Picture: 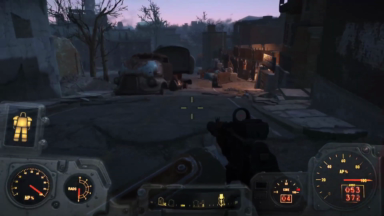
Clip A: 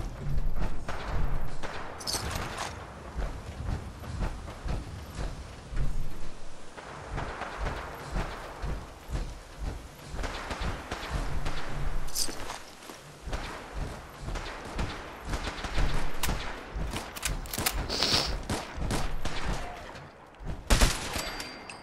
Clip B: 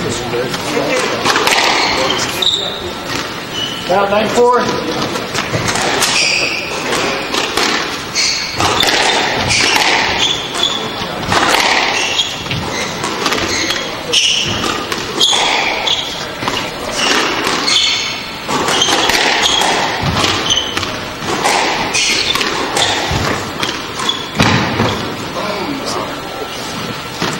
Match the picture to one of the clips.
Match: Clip A